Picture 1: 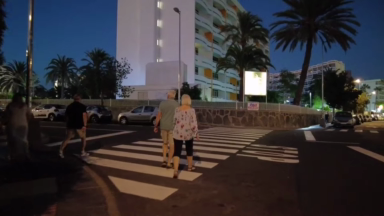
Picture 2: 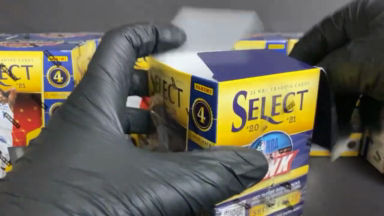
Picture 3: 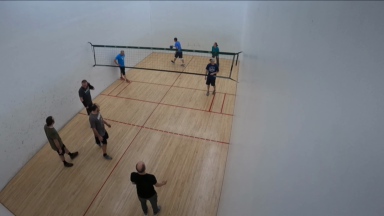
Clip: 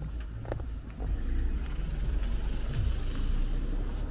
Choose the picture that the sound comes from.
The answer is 1